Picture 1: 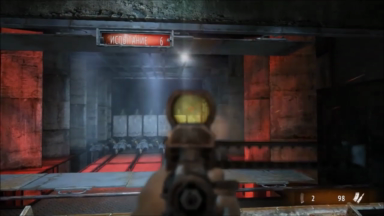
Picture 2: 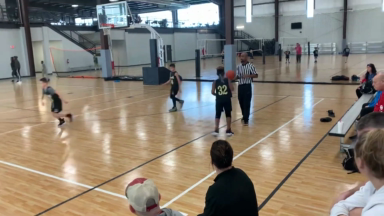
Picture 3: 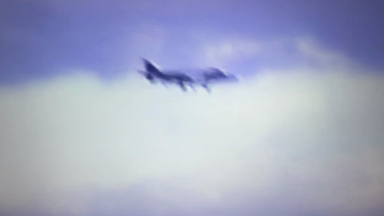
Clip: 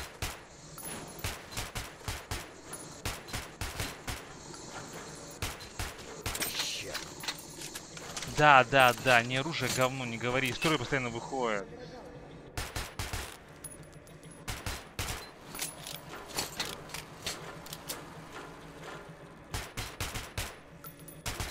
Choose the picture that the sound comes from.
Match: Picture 1